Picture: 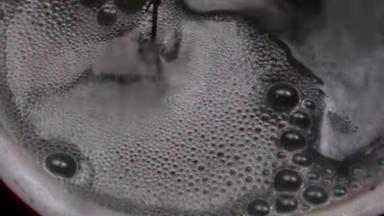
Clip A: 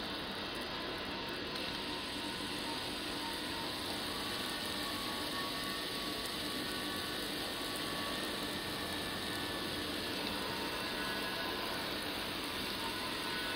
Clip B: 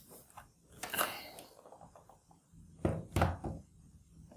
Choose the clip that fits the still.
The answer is A